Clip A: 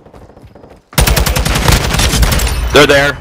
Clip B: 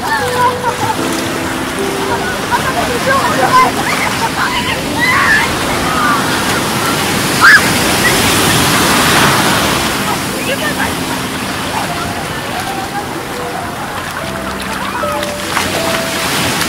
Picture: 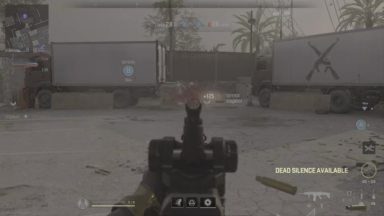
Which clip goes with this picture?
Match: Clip A